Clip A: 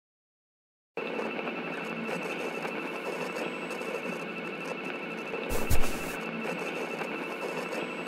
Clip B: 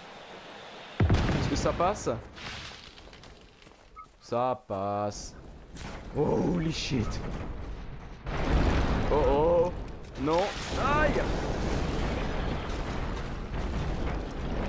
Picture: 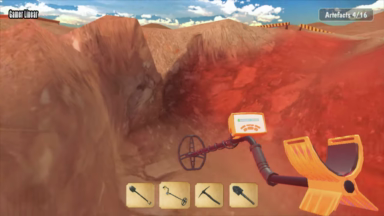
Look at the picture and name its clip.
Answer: A